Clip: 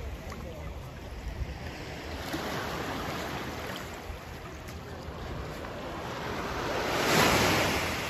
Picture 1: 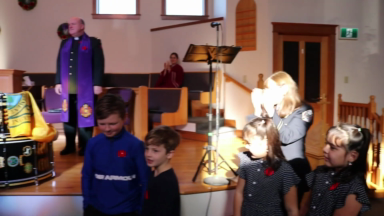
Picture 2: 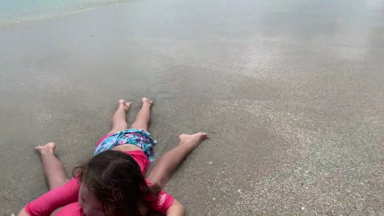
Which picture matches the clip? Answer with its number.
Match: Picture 2